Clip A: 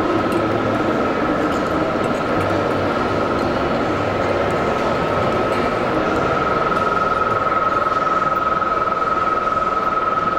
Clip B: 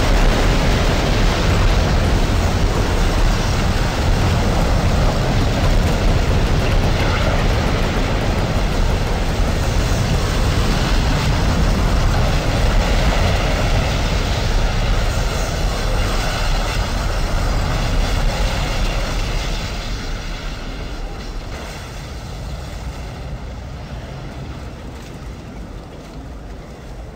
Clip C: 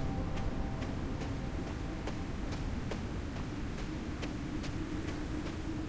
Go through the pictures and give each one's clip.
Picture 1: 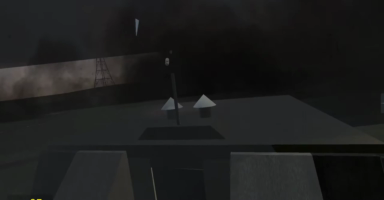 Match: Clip B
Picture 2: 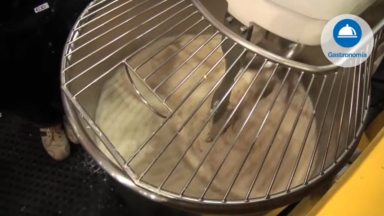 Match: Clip A